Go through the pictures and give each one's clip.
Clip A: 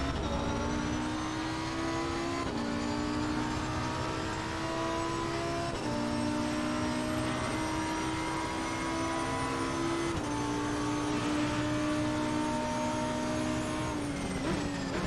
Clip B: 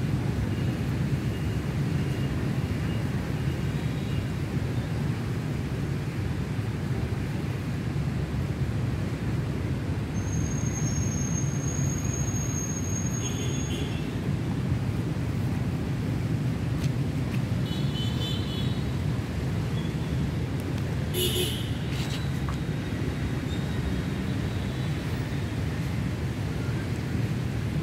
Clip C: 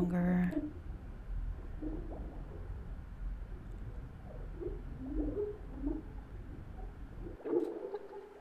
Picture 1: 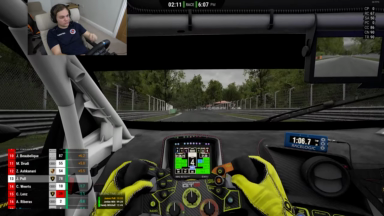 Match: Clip A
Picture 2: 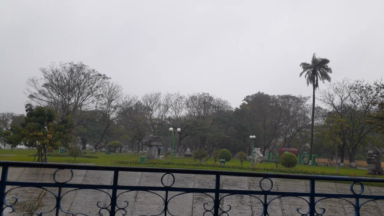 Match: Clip B